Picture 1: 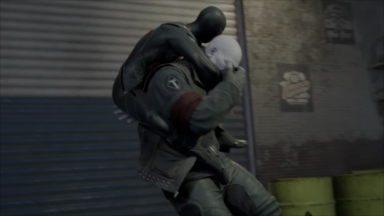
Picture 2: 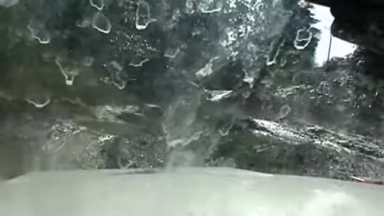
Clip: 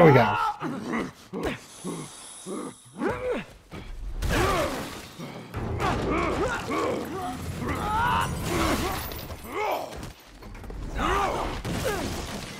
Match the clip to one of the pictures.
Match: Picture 1